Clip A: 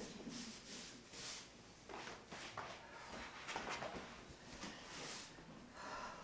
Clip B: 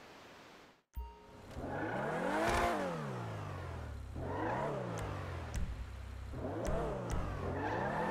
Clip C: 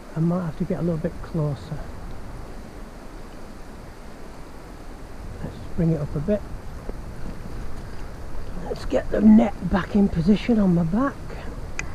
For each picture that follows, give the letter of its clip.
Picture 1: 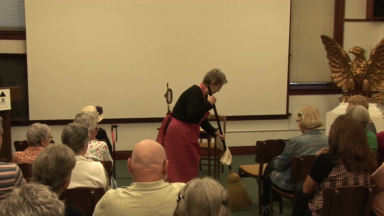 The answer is A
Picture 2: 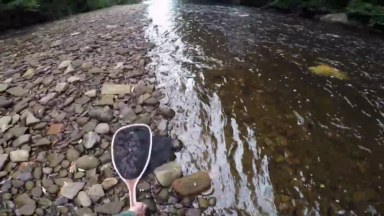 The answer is C